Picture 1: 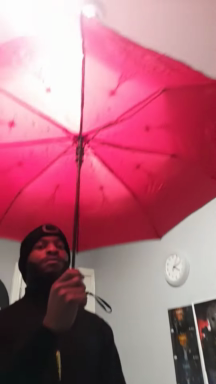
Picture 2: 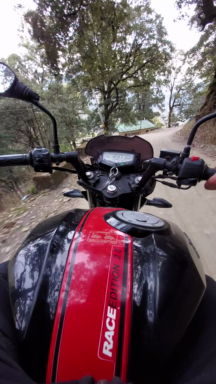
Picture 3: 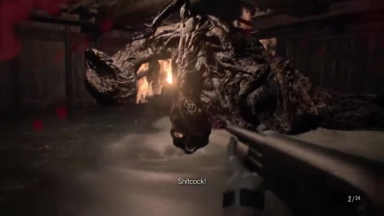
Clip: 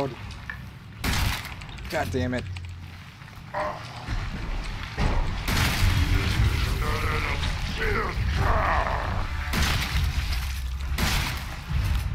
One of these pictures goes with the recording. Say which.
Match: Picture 3